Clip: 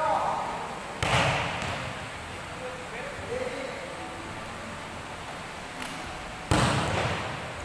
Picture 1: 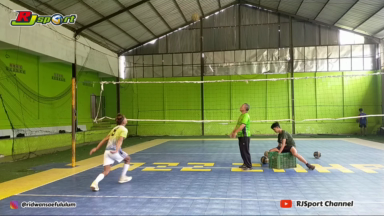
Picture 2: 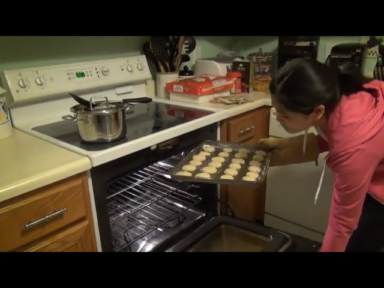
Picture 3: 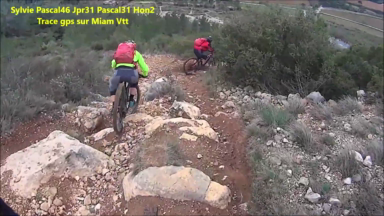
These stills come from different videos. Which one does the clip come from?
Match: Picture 1